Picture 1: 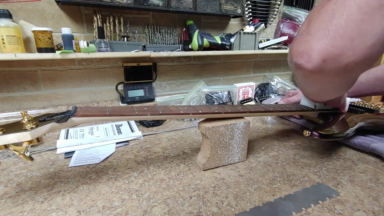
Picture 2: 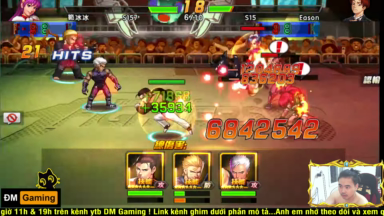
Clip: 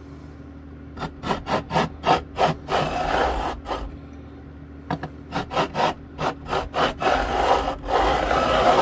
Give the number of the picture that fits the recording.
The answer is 1